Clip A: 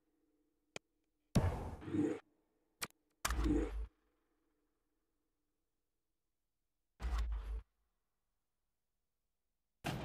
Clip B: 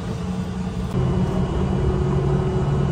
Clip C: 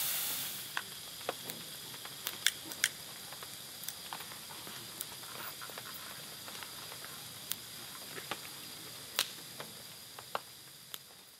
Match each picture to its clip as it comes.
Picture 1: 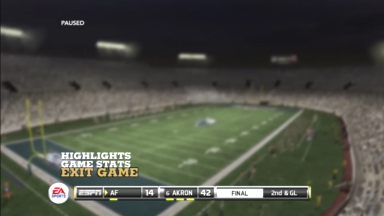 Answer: A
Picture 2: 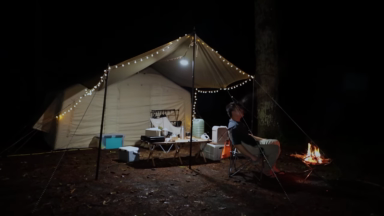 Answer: C